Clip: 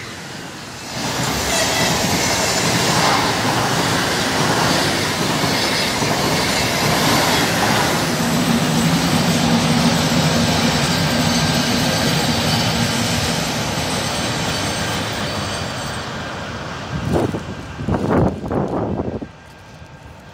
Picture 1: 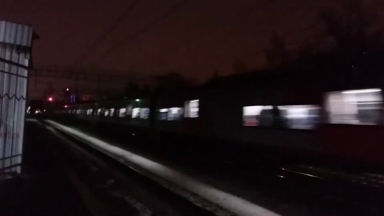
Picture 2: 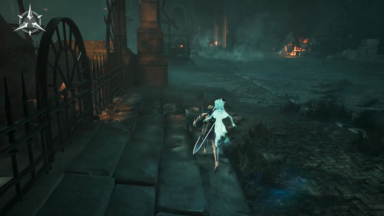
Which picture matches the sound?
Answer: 1